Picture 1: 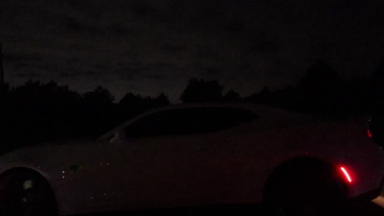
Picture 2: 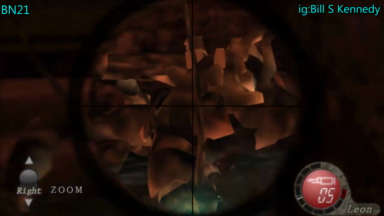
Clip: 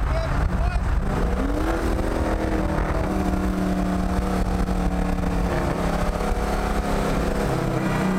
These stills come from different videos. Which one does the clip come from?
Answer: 1